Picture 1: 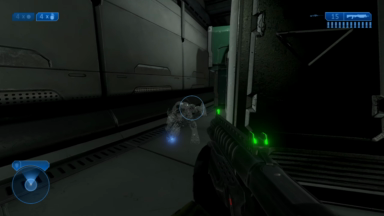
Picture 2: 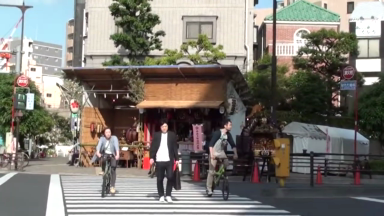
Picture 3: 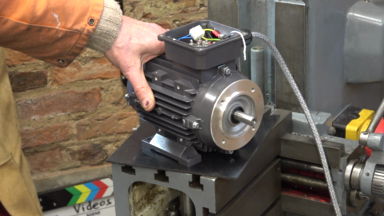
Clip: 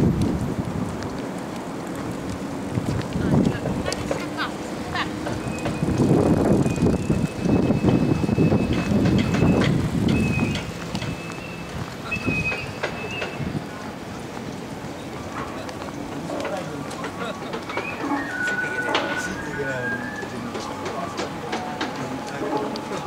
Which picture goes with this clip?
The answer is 2